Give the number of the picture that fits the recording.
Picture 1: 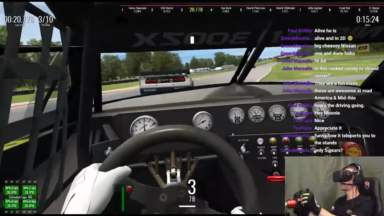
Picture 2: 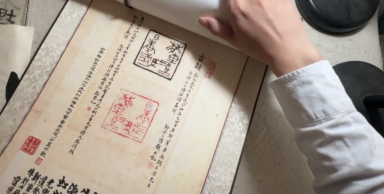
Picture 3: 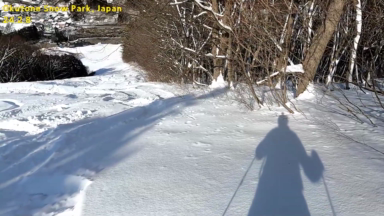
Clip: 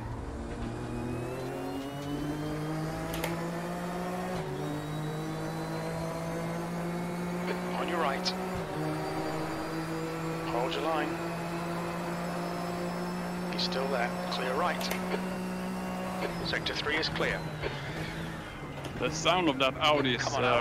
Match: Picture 1